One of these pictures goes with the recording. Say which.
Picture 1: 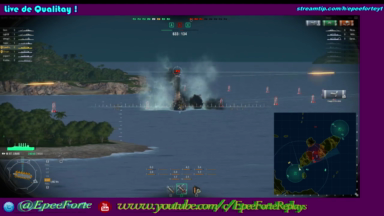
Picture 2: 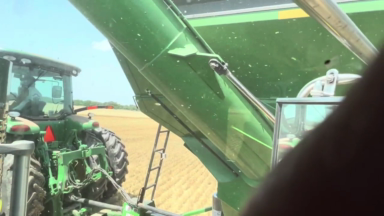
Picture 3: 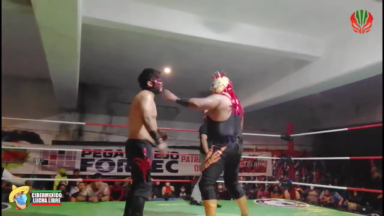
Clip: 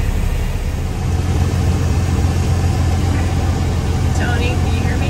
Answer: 2